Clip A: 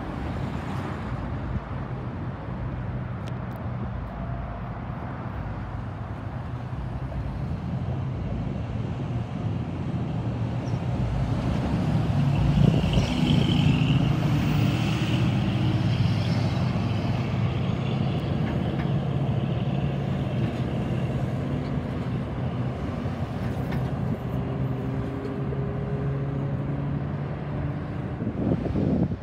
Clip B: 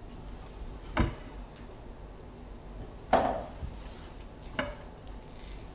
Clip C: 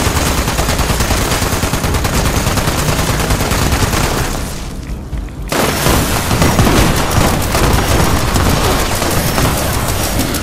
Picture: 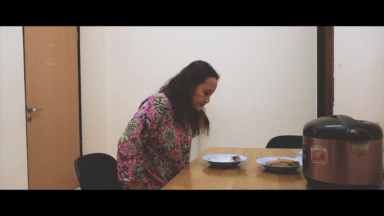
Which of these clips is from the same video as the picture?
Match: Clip B